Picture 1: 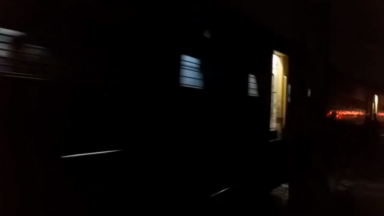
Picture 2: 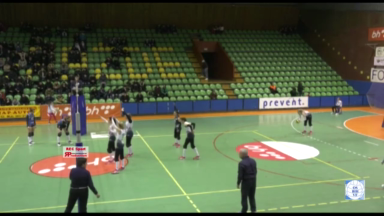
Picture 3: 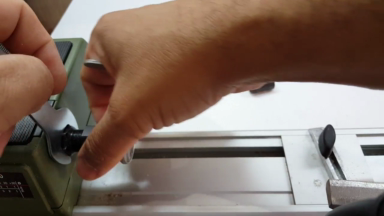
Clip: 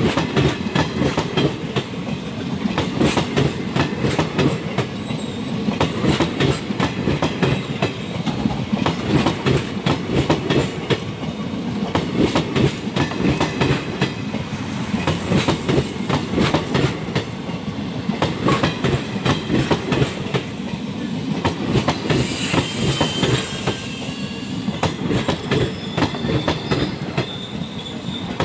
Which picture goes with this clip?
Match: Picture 1